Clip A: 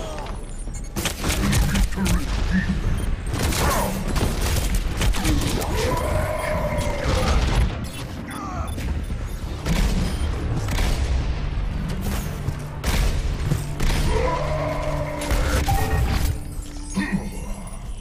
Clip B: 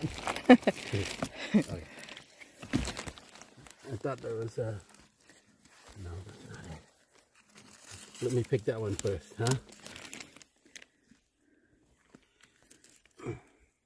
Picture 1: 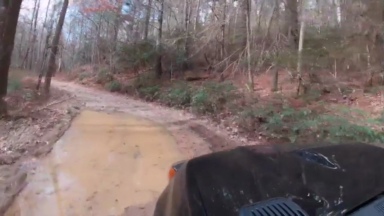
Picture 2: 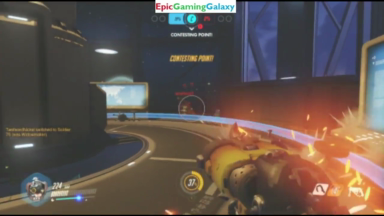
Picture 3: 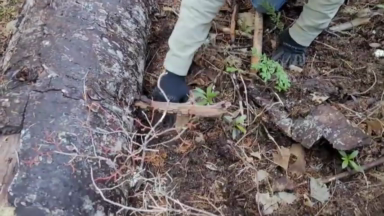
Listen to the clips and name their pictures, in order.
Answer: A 2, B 3